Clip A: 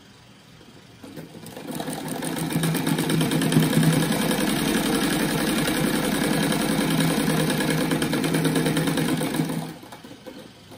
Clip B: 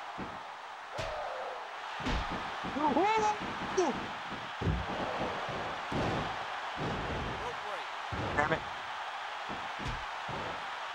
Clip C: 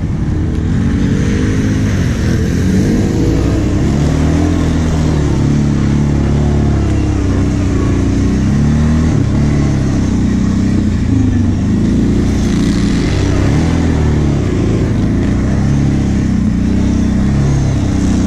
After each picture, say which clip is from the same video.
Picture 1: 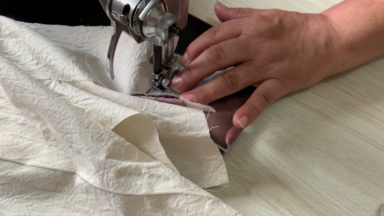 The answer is A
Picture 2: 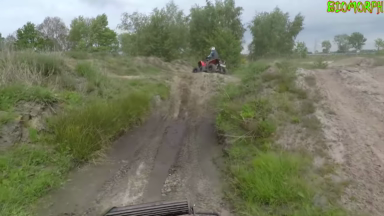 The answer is C